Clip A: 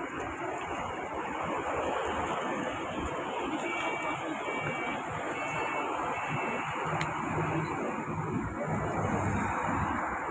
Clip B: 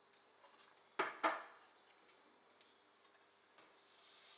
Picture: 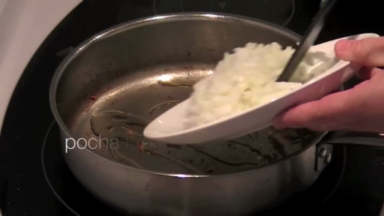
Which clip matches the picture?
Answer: B